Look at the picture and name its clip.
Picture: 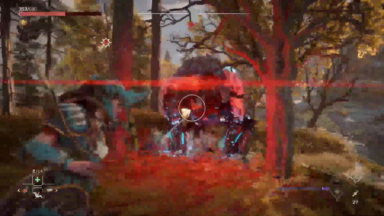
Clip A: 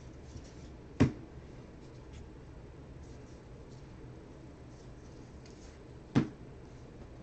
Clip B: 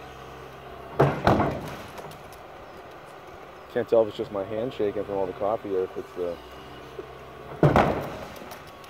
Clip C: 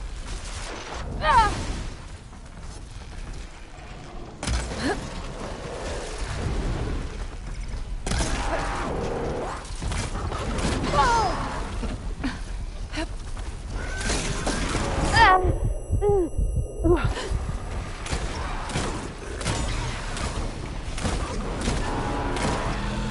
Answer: C